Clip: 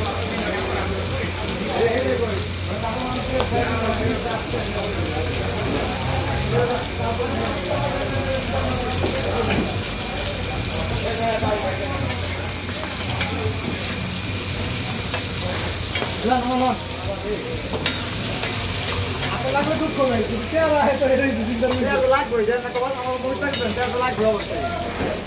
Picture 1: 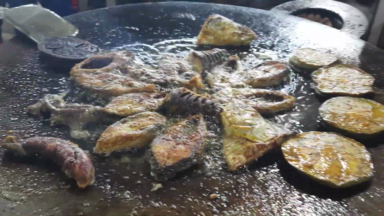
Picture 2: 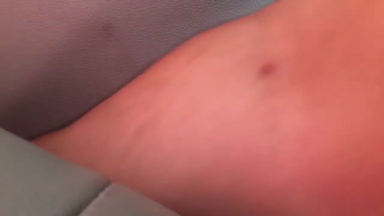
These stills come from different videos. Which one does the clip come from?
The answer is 1